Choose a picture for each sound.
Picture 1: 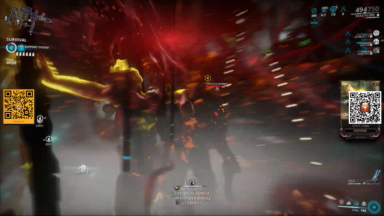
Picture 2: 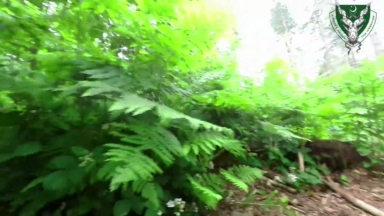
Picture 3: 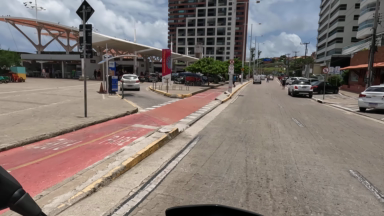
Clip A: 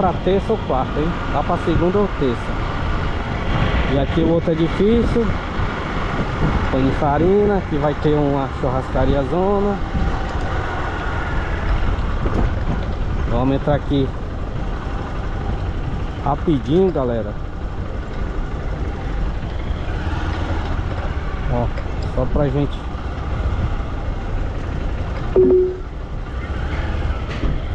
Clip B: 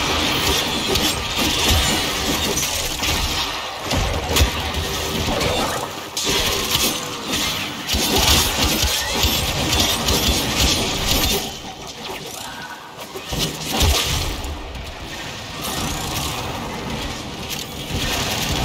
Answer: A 3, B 1